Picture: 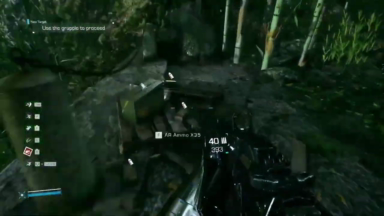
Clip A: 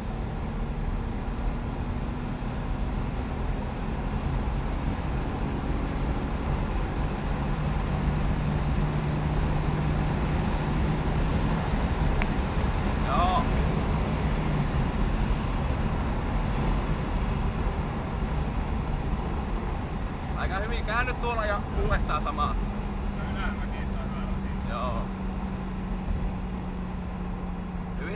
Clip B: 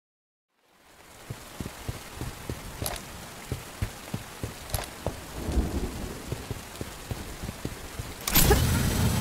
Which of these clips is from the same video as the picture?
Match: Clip B